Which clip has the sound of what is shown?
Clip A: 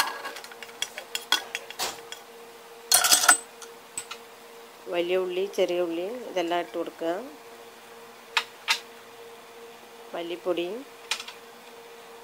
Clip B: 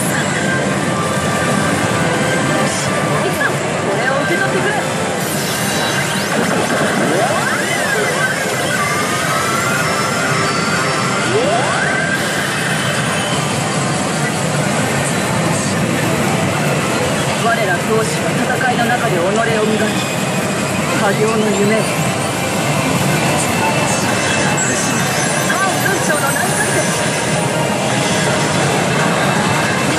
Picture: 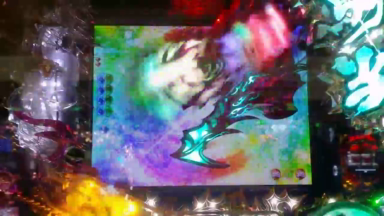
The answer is B